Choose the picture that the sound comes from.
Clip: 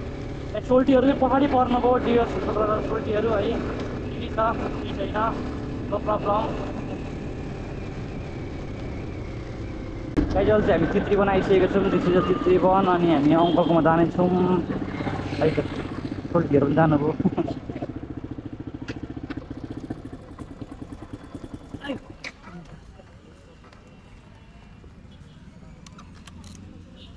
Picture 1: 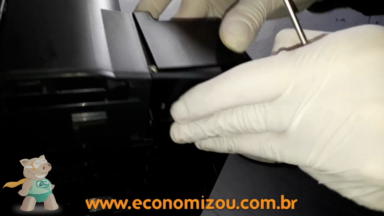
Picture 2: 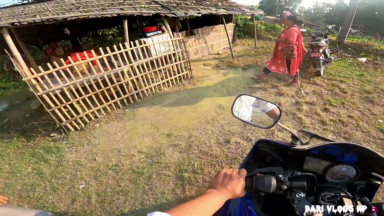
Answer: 2